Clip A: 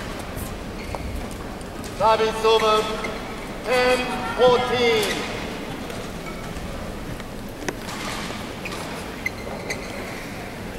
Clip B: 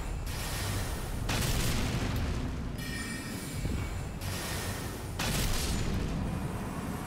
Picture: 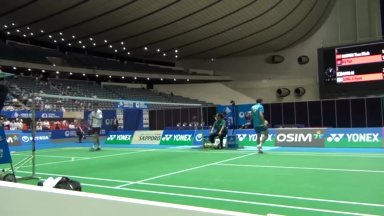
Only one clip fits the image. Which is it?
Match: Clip A